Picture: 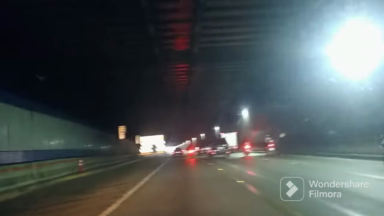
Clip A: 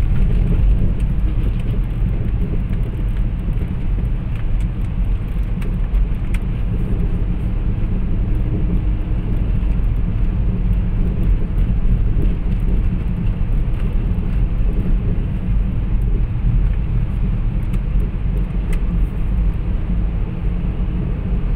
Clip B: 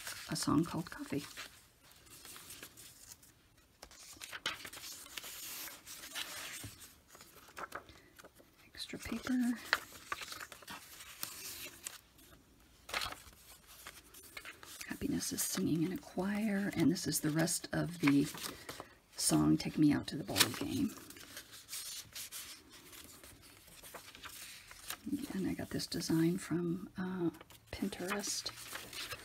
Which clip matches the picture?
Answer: A